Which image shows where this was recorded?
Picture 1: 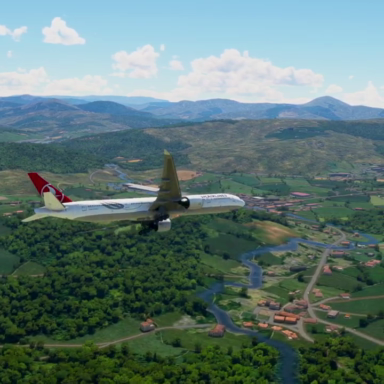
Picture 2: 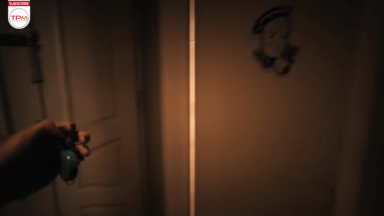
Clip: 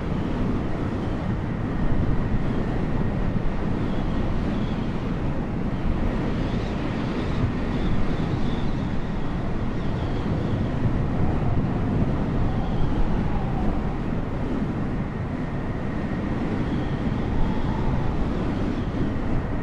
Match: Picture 1